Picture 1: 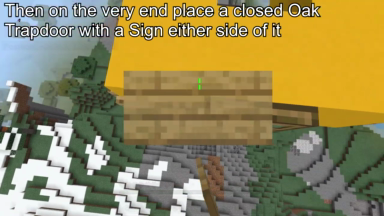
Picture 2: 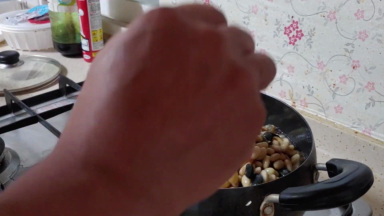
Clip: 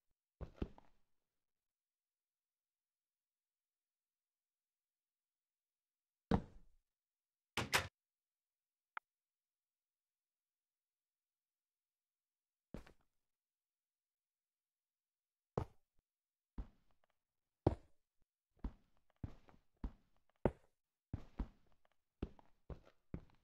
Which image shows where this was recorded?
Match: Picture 1